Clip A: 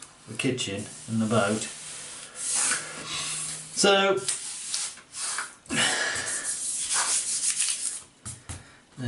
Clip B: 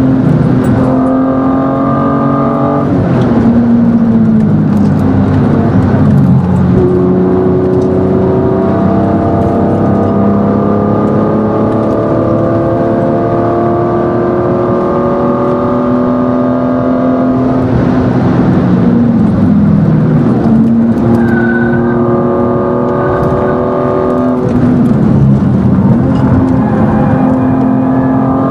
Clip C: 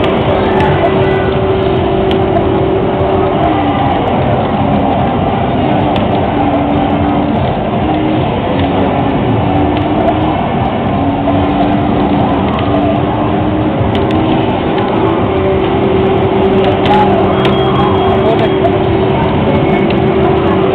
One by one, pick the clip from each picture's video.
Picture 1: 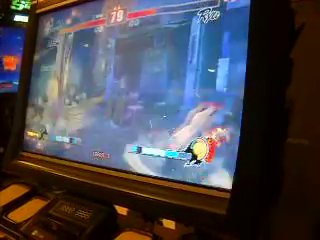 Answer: C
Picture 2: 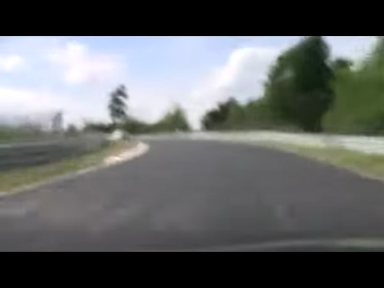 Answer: B